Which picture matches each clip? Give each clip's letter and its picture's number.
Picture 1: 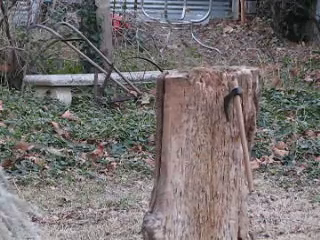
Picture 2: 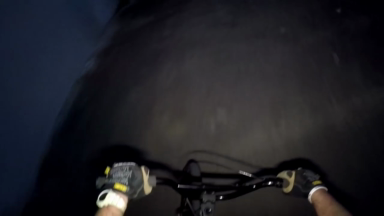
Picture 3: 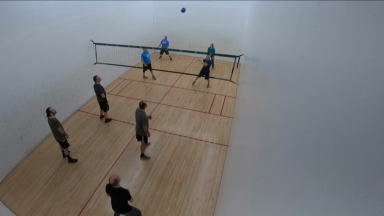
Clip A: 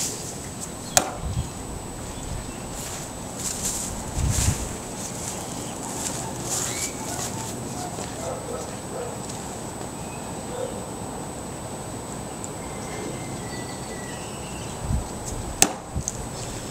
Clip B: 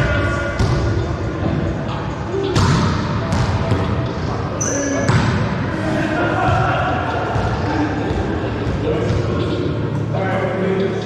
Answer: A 1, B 3